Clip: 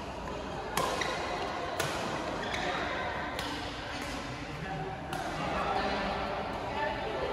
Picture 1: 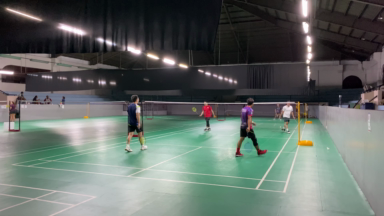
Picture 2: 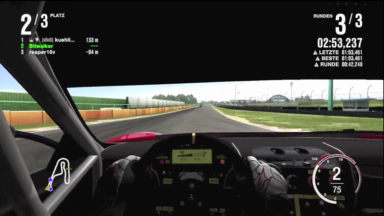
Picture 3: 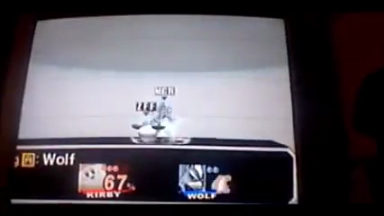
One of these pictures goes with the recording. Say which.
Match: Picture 1